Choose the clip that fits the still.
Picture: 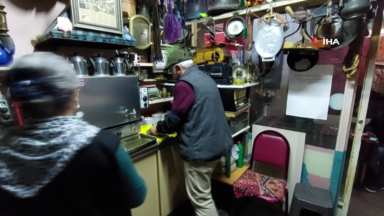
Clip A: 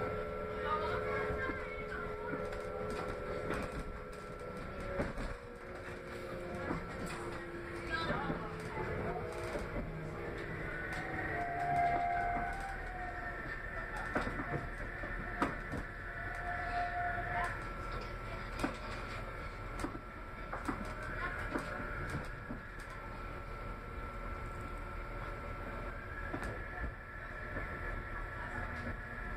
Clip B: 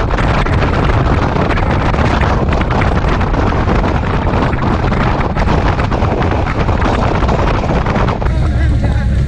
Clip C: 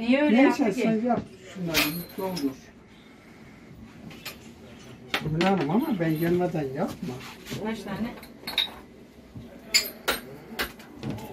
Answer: C